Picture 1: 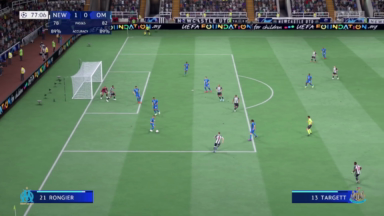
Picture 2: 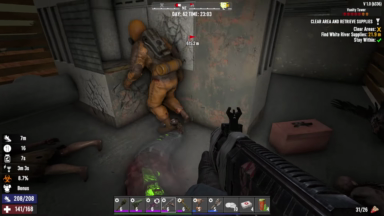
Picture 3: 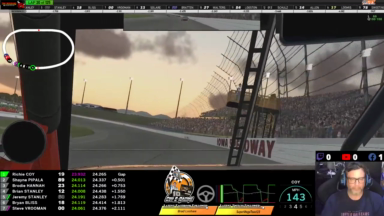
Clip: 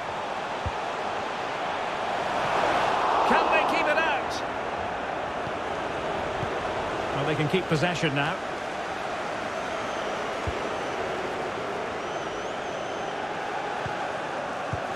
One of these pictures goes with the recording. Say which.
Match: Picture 1